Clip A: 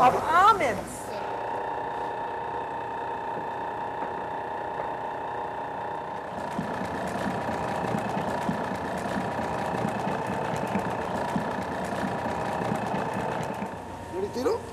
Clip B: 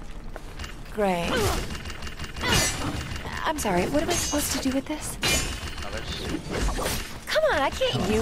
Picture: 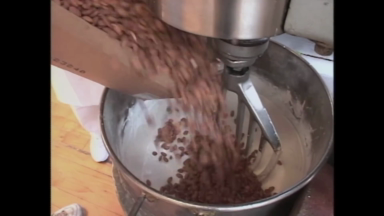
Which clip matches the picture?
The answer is A